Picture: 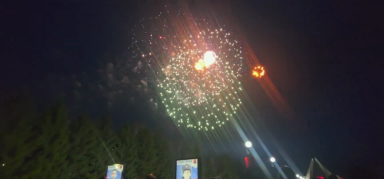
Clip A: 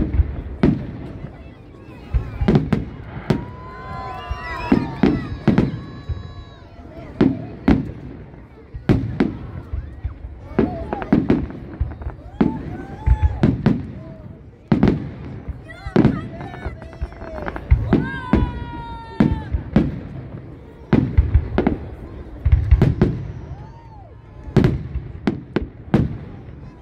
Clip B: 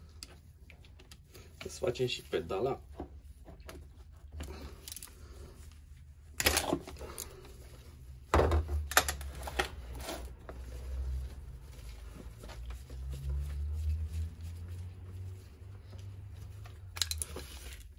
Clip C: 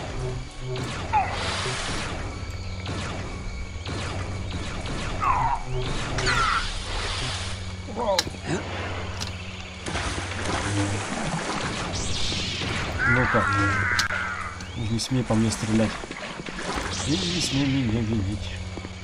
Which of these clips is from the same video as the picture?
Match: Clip A